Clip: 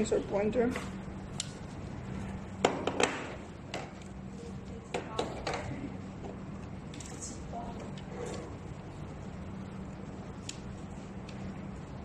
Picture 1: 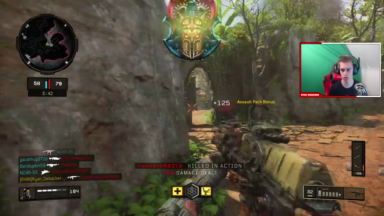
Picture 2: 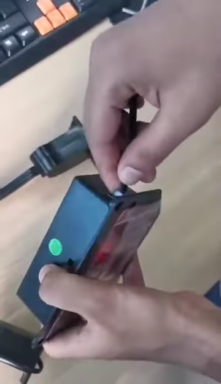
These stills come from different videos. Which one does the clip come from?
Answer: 2